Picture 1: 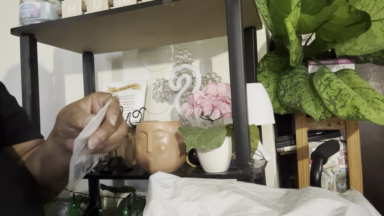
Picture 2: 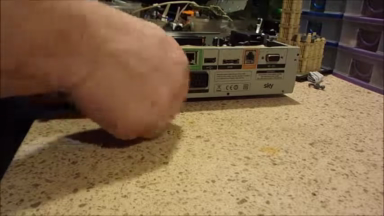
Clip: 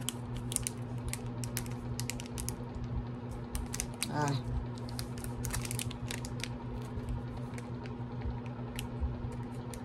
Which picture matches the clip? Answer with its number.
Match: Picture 1